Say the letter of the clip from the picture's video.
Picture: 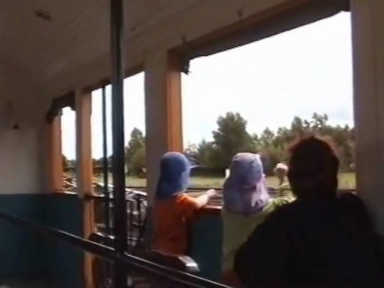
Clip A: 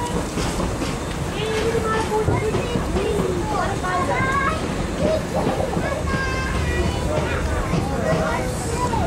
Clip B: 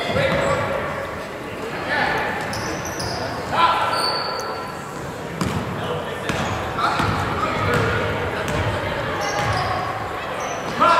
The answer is A